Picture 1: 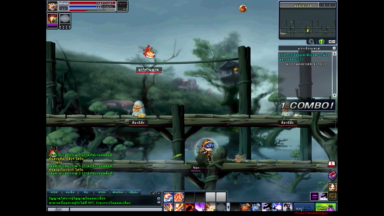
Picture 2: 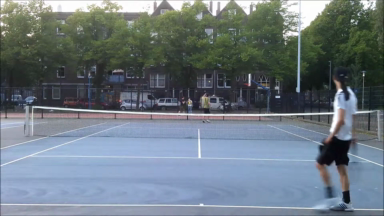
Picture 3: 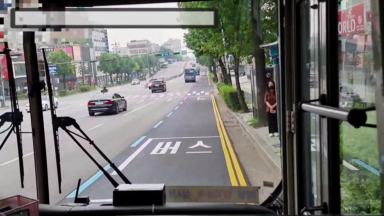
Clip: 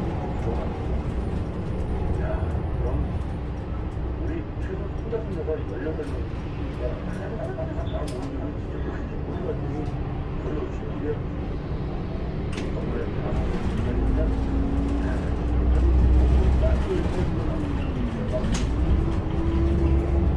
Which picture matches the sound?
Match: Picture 3